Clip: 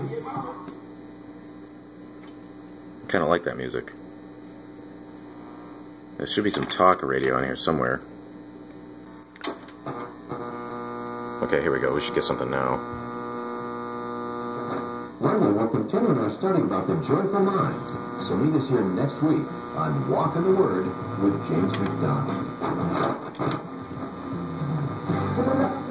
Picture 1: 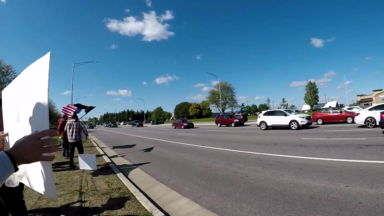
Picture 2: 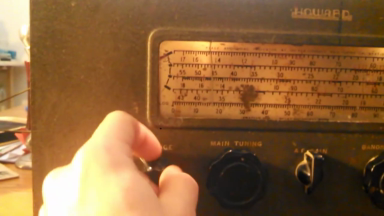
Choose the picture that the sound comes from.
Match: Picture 2